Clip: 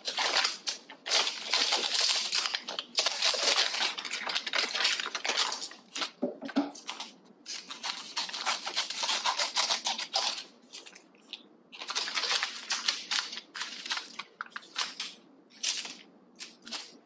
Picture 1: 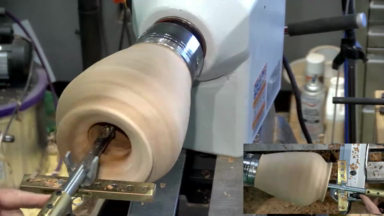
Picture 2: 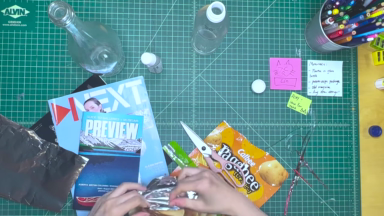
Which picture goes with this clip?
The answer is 2